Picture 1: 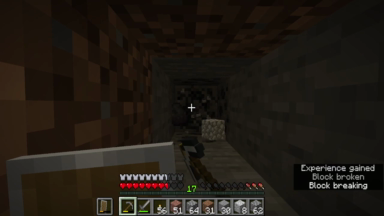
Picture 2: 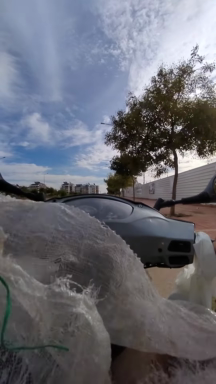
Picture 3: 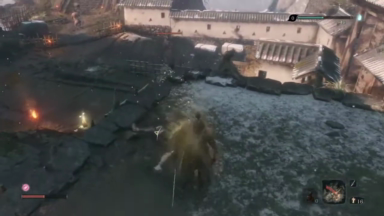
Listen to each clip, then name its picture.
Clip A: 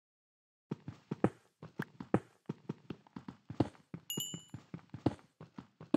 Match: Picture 1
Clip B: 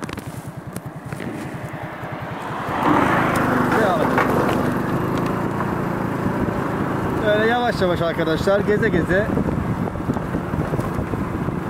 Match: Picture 2